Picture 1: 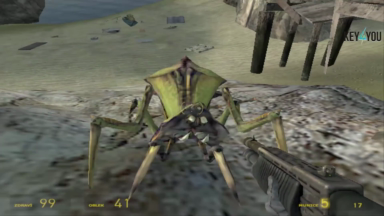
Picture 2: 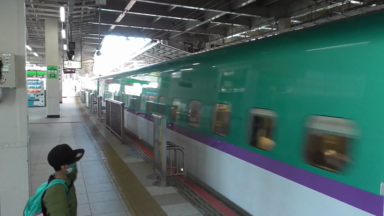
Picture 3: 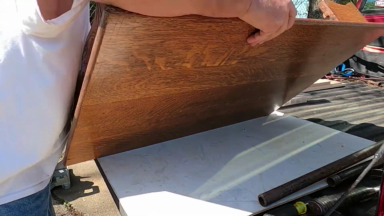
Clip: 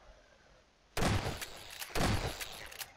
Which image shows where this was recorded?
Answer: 1